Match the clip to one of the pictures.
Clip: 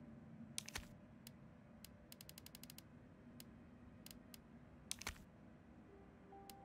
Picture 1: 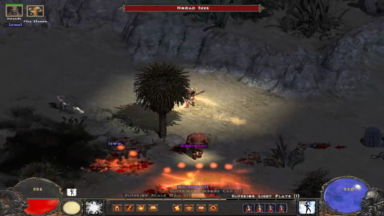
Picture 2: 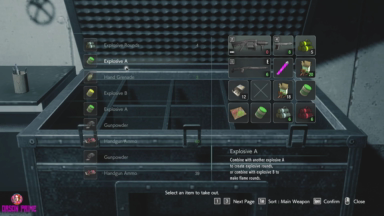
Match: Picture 2